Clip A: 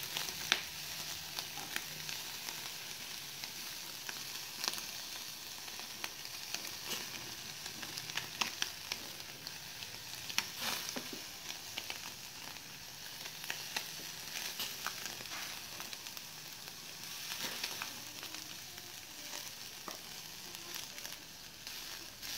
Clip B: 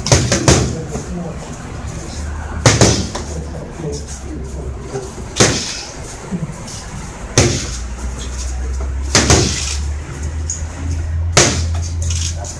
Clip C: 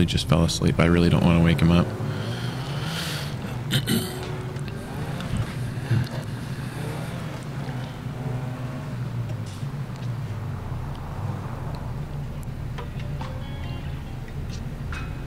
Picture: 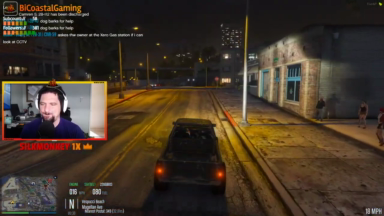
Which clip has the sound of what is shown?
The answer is C